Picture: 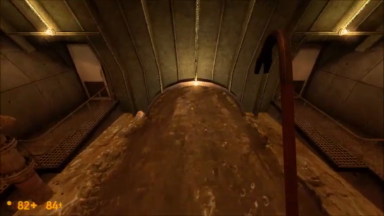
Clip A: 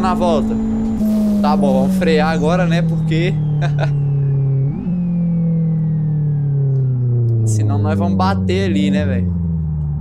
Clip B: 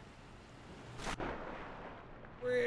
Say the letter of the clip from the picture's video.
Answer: B